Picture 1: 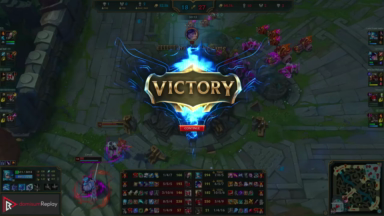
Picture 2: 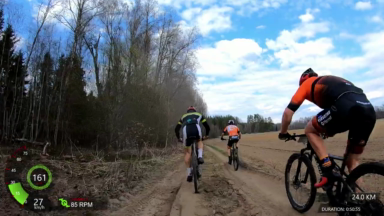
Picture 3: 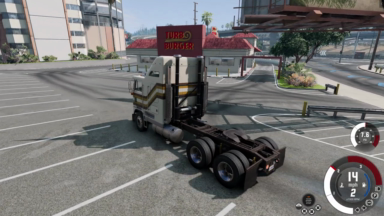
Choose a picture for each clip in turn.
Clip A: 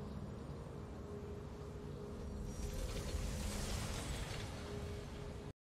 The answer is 1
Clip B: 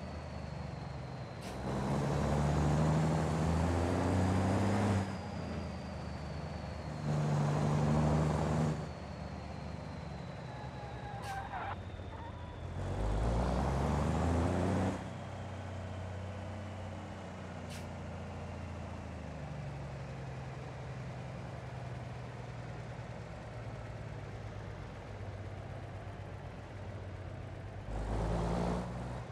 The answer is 3